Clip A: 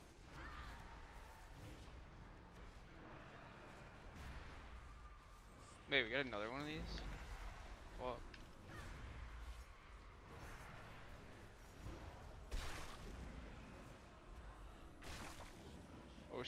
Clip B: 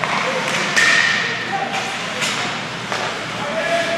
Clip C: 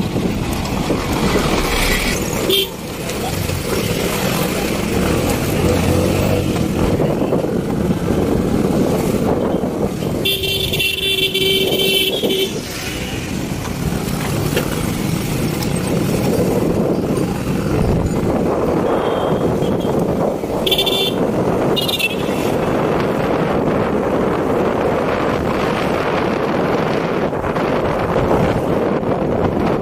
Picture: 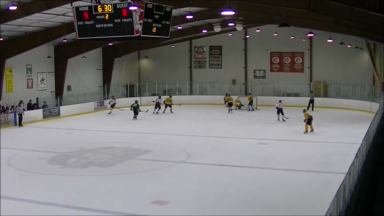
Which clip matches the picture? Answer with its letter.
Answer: B